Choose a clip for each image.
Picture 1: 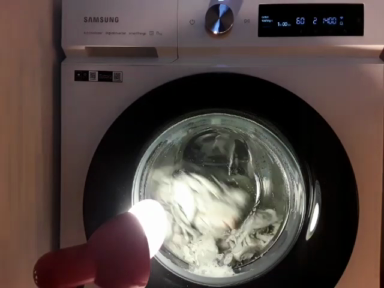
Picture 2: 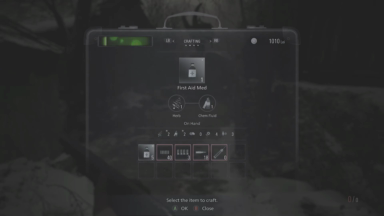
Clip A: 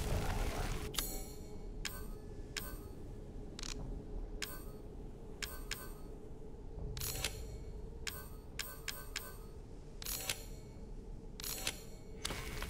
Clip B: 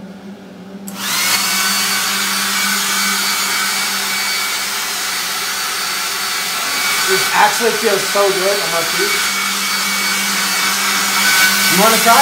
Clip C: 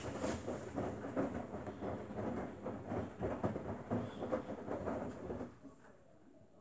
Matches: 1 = C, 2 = A